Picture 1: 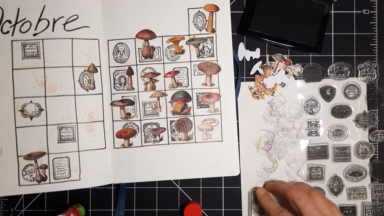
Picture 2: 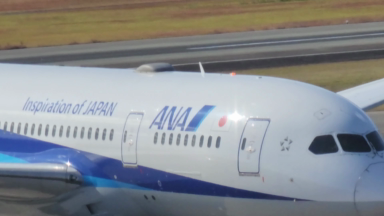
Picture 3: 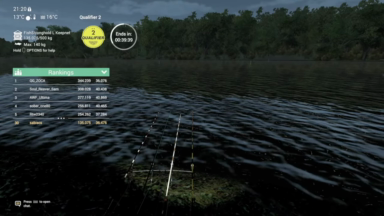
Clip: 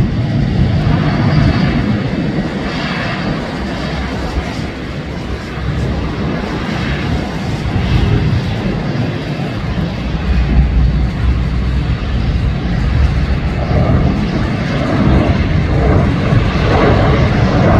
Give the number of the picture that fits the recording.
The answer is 2